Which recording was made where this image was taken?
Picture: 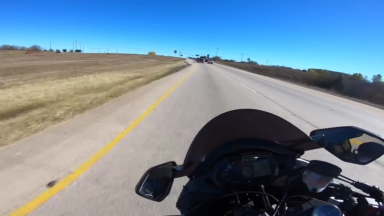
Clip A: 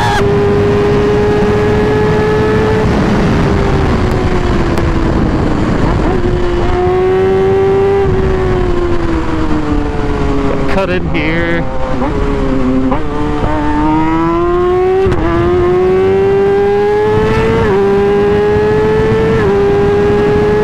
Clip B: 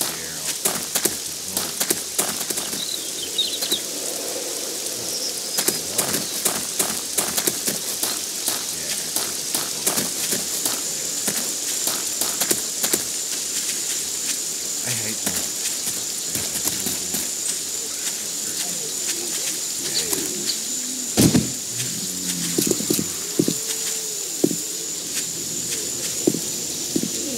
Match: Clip A